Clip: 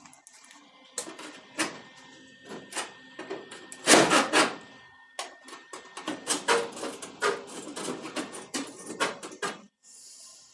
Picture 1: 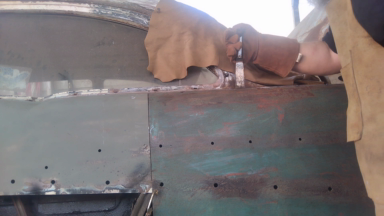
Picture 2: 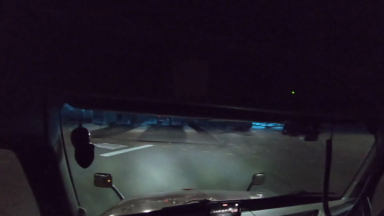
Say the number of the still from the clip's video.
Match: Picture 1